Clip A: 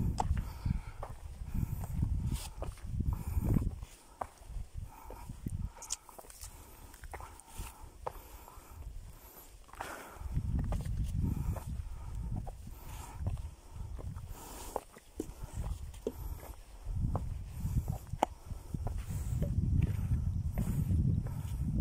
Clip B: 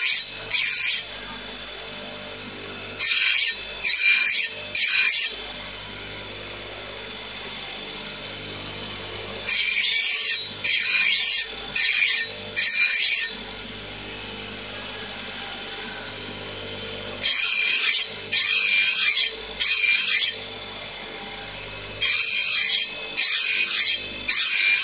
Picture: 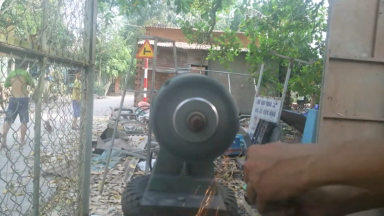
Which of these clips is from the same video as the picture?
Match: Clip B